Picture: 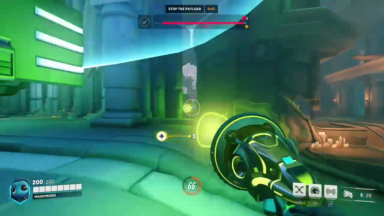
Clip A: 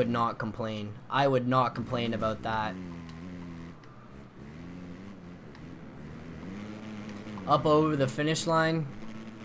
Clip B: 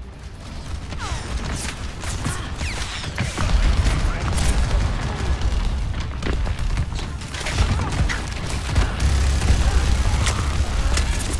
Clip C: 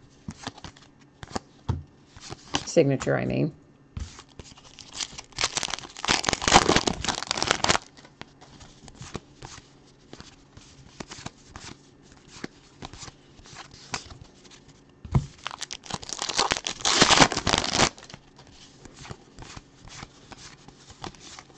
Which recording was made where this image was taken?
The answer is B